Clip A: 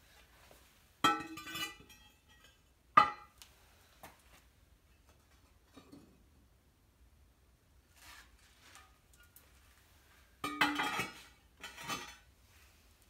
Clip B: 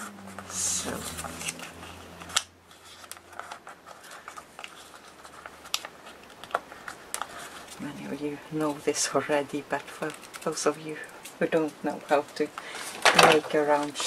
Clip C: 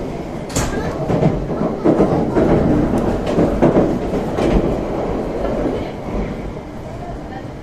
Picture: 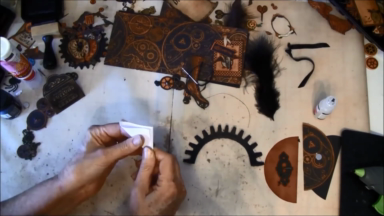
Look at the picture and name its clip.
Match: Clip B